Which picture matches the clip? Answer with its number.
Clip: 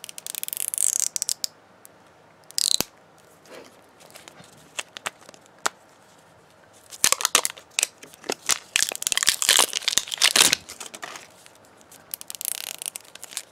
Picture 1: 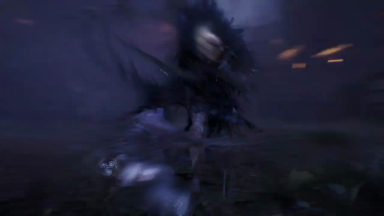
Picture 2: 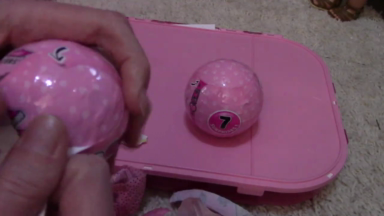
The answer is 2